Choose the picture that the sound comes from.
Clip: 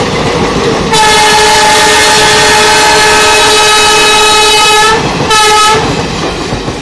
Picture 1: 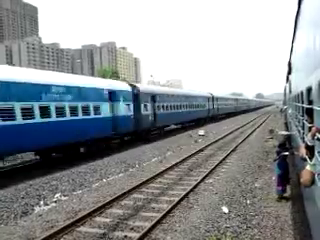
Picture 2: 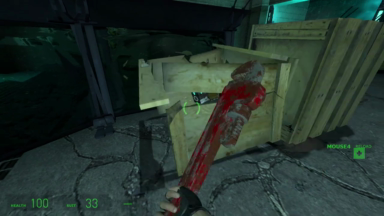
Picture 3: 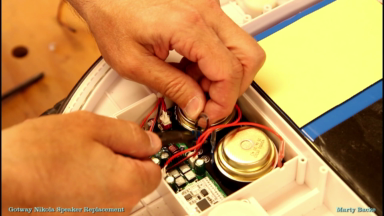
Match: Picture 1